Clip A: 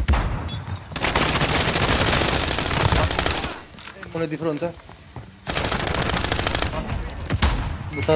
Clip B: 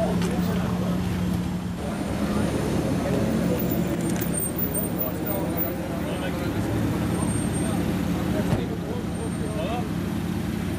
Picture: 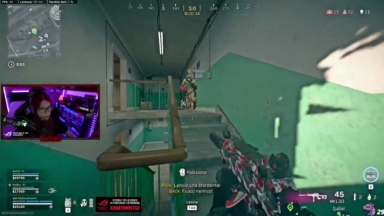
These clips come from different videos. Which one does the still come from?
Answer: A